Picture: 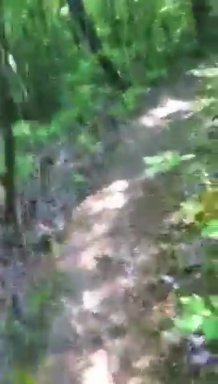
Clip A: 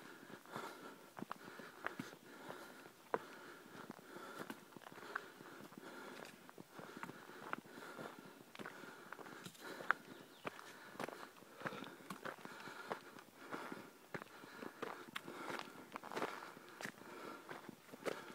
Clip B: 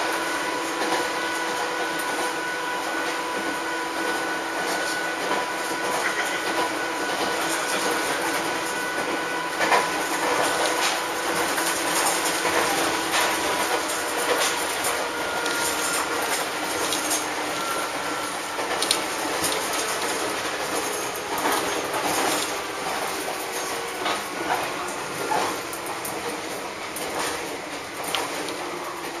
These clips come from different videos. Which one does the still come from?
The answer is A